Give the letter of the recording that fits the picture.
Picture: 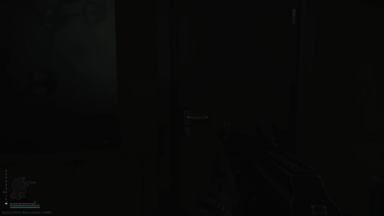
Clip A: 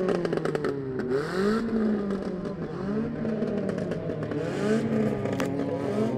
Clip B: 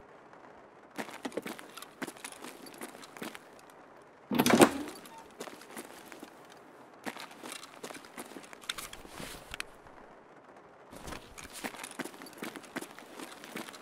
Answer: B